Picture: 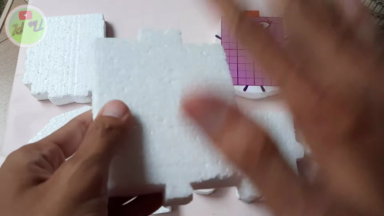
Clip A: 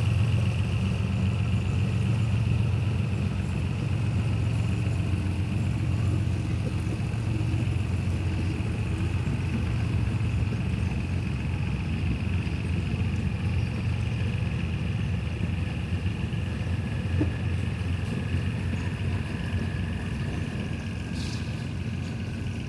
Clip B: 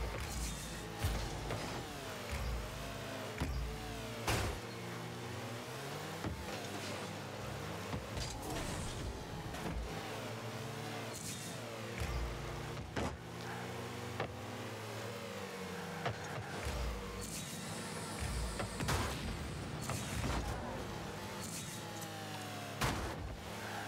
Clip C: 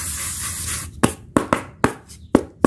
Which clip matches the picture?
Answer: C